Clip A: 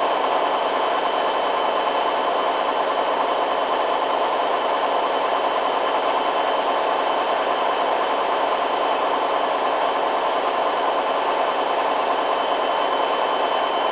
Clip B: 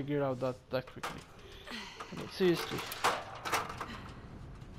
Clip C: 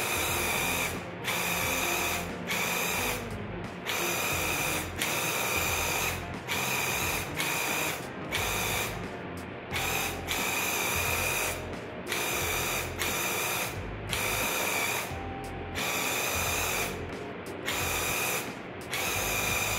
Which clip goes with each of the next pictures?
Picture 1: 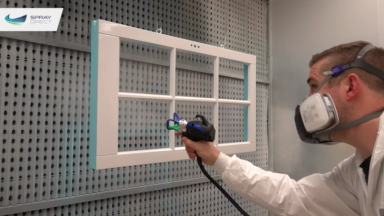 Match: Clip C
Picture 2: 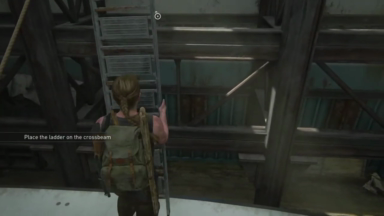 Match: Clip B